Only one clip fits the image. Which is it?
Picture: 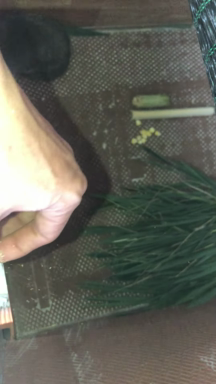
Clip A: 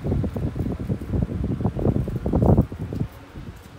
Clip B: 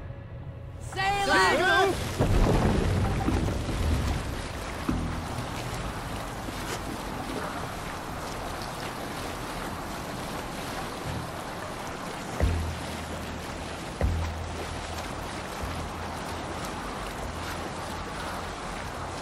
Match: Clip A